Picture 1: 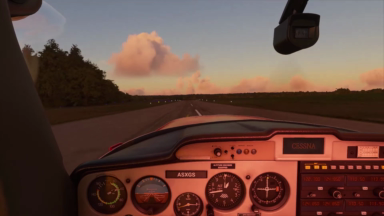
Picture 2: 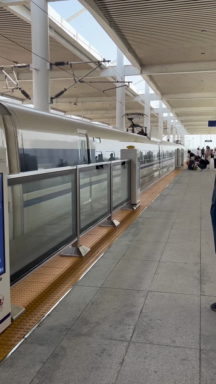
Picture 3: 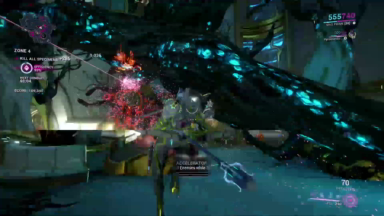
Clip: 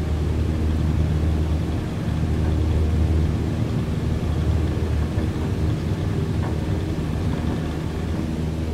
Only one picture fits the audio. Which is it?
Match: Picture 1